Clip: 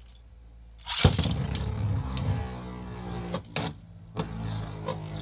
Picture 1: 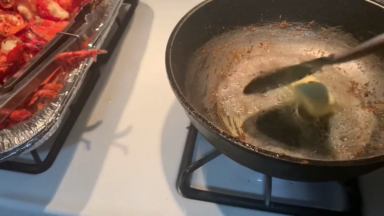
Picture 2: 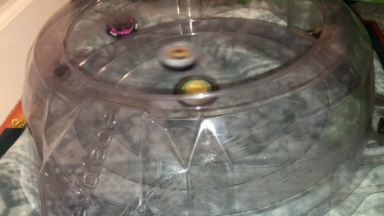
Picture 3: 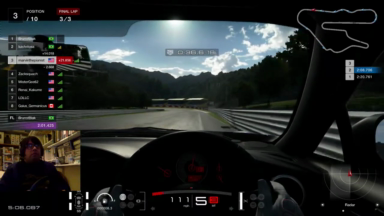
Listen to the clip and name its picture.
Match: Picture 2